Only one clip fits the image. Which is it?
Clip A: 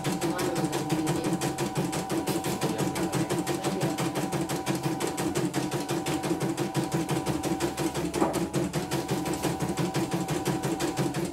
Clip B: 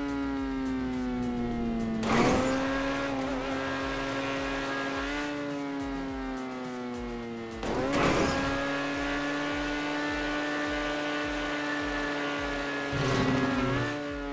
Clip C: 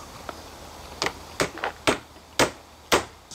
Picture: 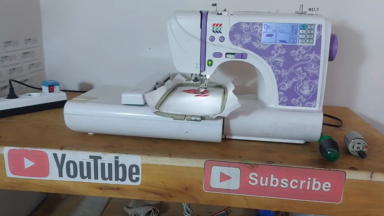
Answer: A